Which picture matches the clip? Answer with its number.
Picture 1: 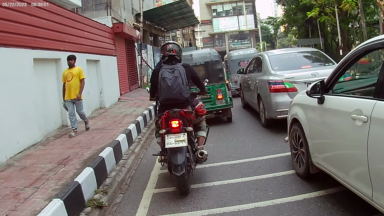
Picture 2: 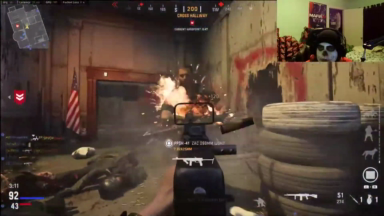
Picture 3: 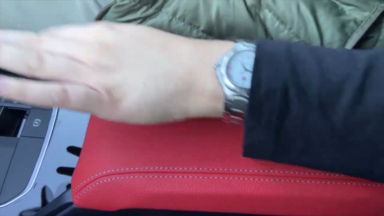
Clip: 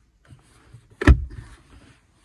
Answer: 3